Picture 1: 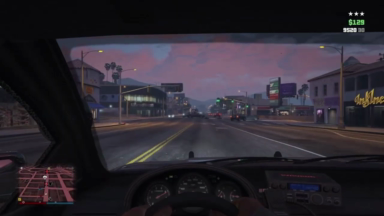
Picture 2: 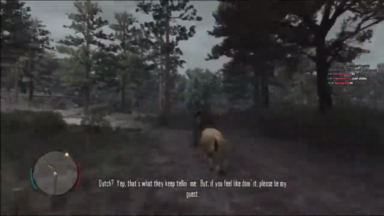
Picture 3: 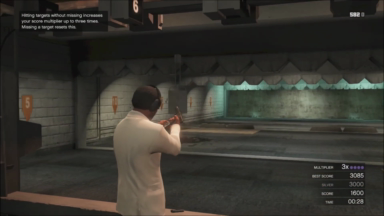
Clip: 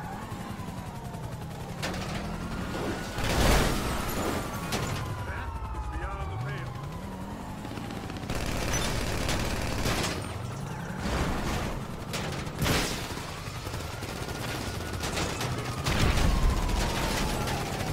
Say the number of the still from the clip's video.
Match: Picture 1